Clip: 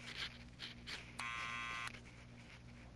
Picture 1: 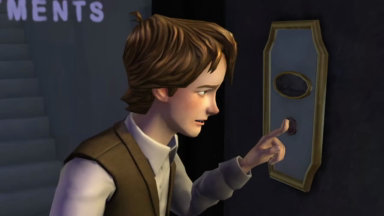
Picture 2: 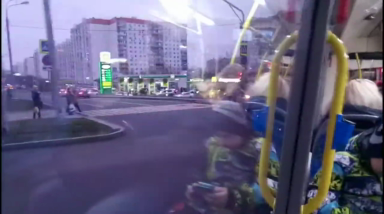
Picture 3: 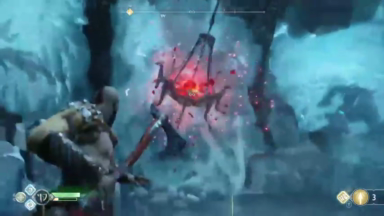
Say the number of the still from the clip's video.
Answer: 1